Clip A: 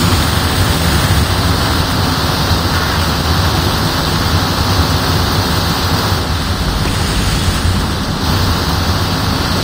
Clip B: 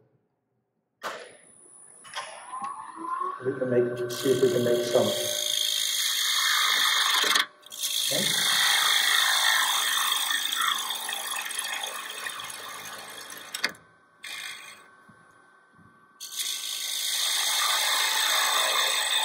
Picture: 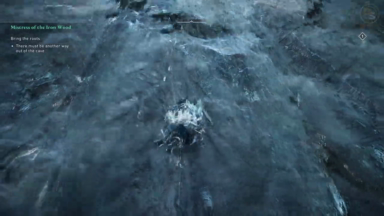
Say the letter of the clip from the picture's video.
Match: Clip A